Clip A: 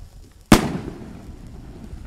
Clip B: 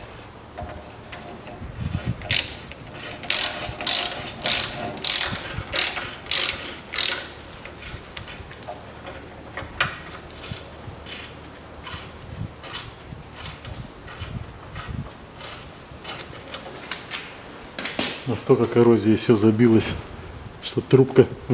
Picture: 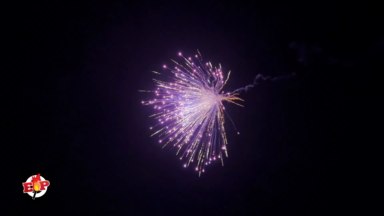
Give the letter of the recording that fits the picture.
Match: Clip A